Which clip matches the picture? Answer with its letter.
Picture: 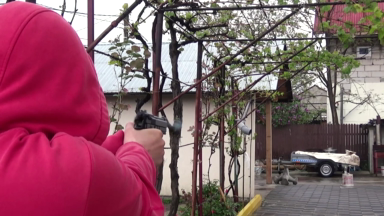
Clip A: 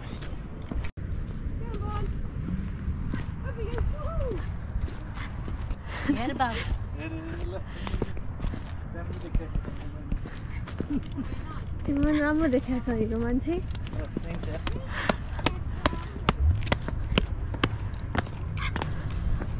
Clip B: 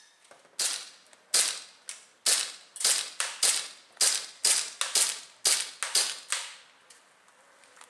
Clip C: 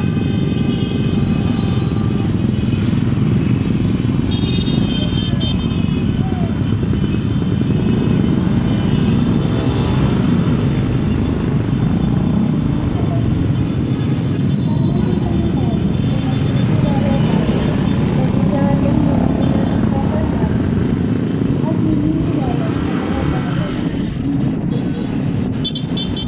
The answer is B